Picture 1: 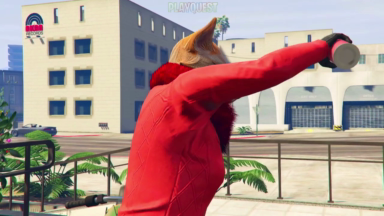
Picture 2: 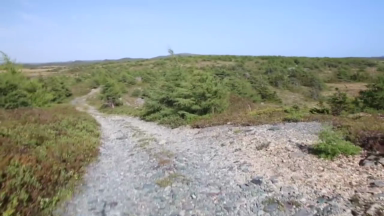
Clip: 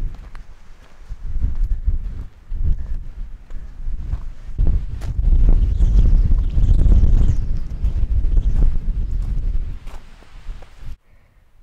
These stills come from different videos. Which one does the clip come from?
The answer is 2